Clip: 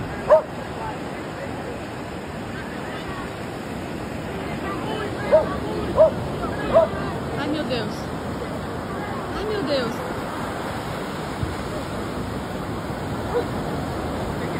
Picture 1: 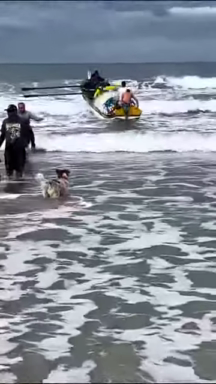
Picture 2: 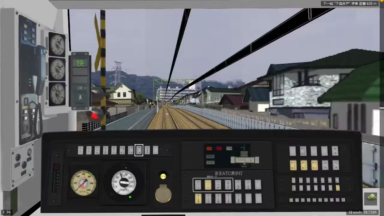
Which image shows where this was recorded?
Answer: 1